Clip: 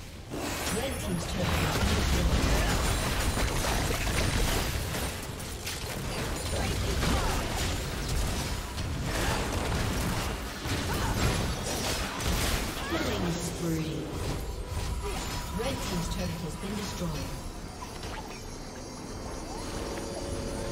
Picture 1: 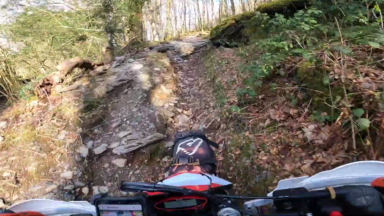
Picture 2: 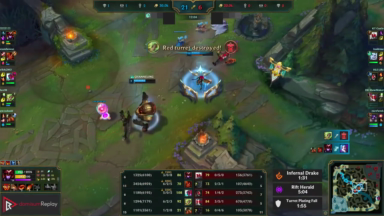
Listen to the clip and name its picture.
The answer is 2